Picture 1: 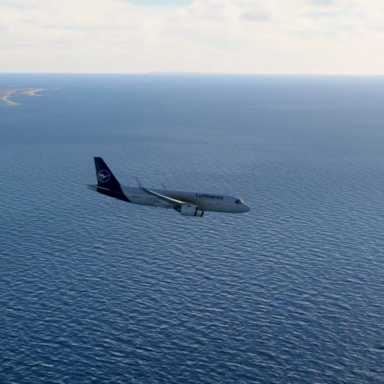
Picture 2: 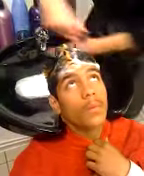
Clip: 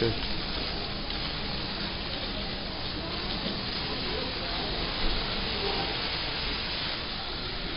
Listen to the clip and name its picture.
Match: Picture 2